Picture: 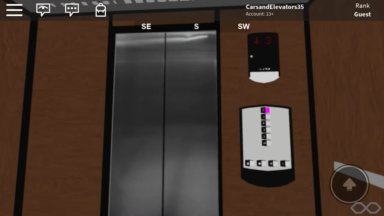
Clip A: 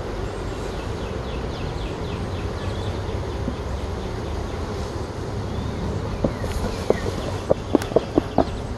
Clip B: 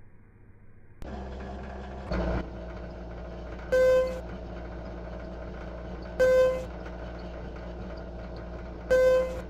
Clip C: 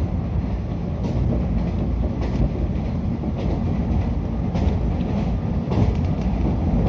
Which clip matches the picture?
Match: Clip B